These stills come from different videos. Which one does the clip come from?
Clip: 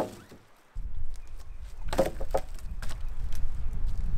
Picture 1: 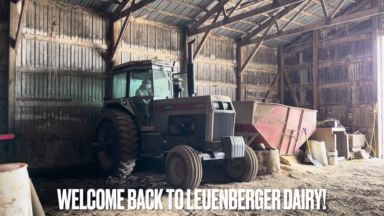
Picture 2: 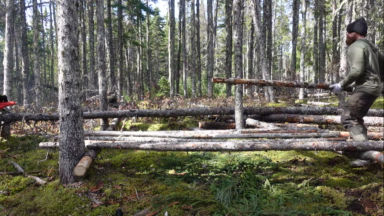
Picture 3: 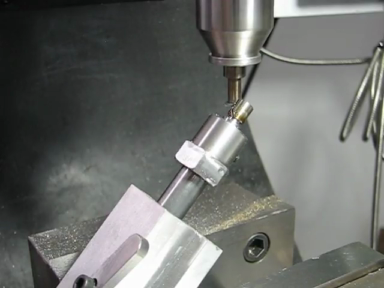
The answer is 2